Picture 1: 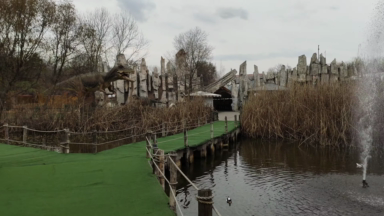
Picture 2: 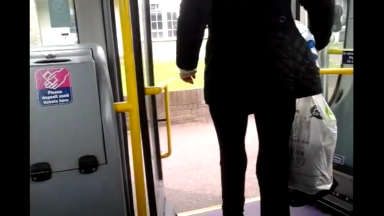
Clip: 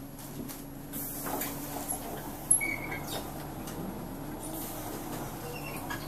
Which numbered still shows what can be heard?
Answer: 2